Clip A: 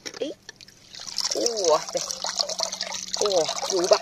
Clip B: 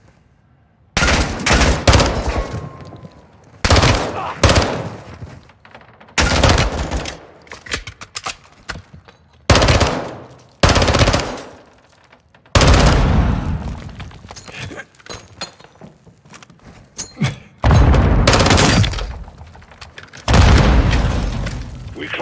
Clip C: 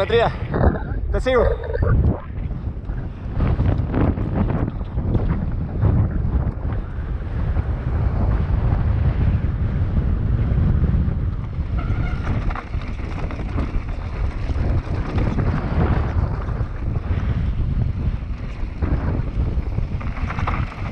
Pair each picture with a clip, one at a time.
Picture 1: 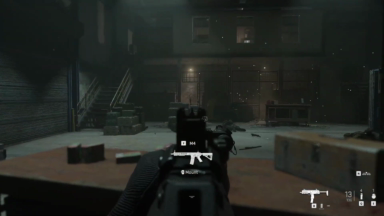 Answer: B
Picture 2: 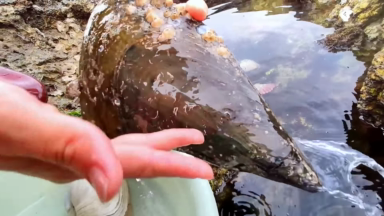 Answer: A